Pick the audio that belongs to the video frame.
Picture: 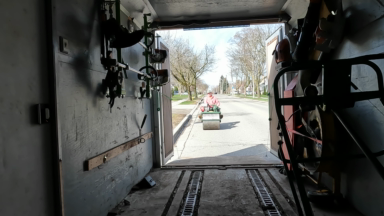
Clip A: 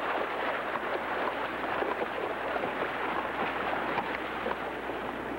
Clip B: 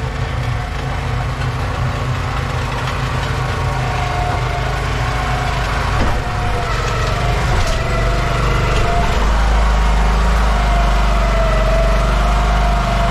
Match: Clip B